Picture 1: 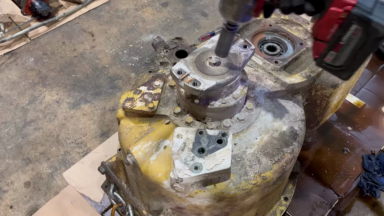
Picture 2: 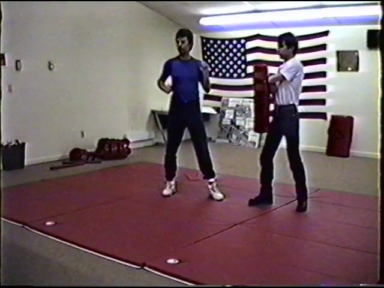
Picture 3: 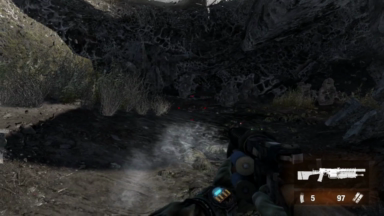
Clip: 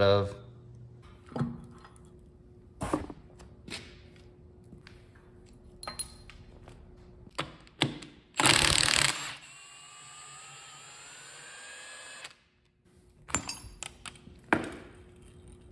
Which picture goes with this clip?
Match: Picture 1